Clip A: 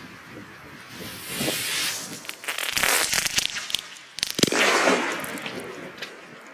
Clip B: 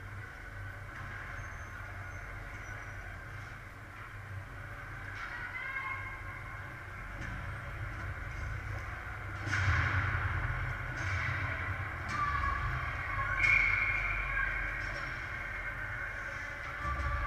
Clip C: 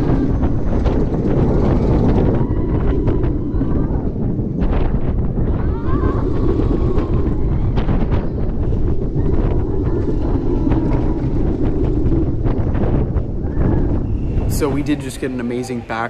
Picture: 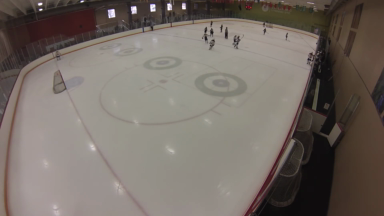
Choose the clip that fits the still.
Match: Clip B